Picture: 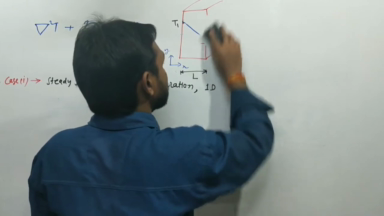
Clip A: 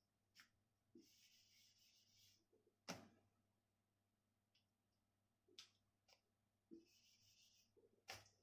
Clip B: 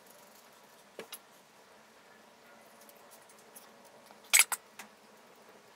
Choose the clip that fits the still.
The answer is A